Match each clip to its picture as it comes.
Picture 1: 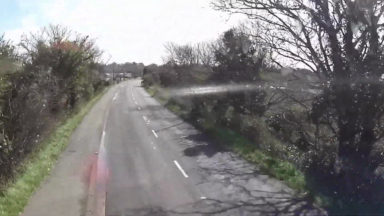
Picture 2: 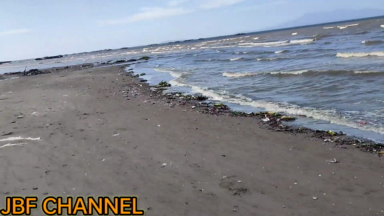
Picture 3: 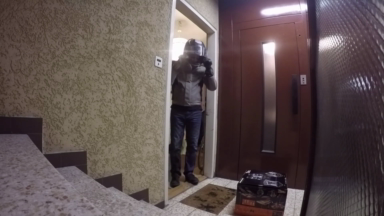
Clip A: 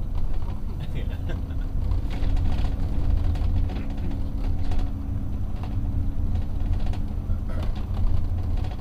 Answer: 1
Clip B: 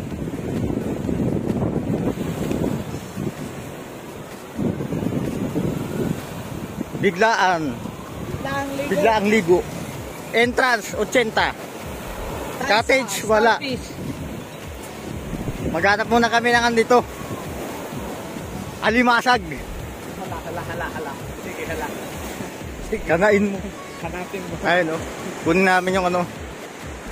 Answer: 2